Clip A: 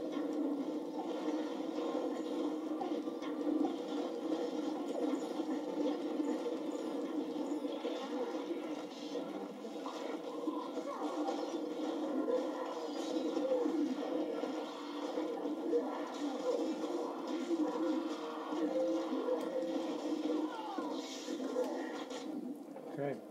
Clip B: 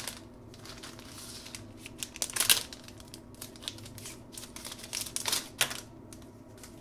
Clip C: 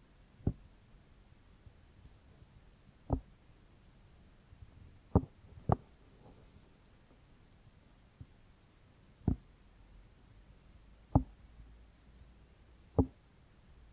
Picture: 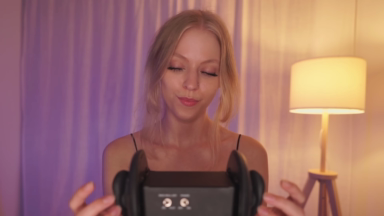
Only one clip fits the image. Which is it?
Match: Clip C